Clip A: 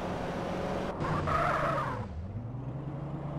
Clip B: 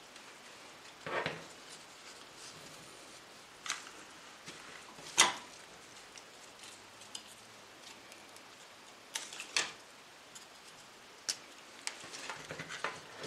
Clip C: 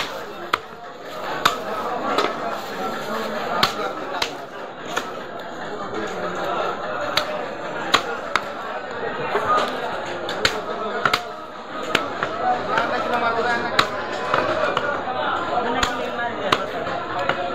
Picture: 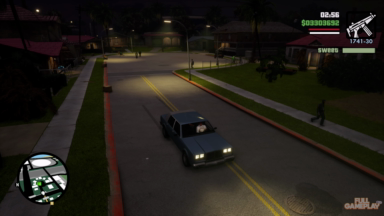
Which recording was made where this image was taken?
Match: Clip A